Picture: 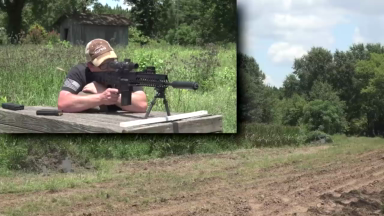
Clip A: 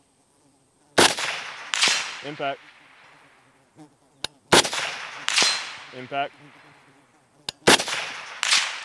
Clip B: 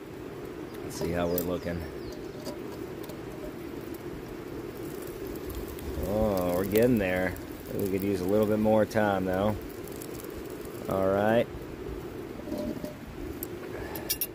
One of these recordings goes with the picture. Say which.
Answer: A